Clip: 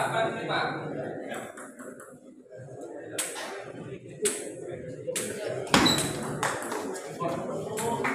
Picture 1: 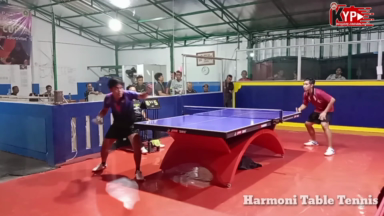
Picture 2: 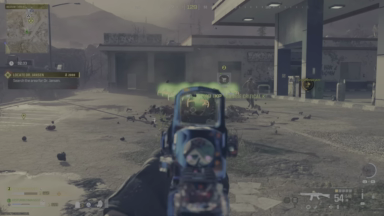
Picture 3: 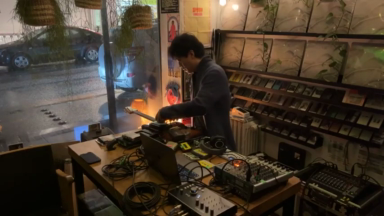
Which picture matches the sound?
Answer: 1